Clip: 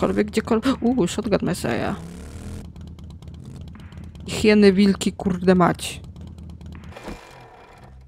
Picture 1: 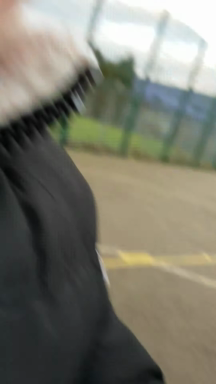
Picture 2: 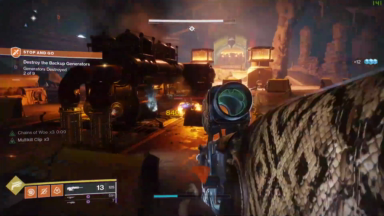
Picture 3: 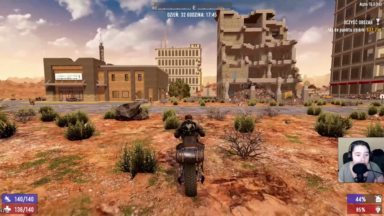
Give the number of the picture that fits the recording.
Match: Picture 3